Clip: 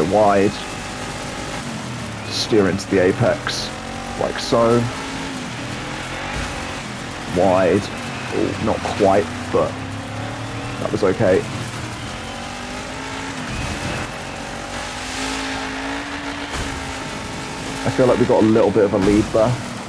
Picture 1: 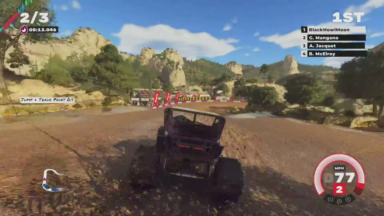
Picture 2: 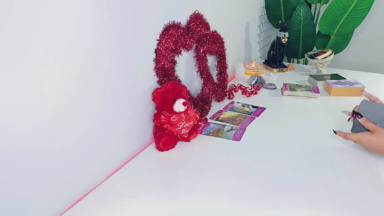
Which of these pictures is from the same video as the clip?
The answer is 1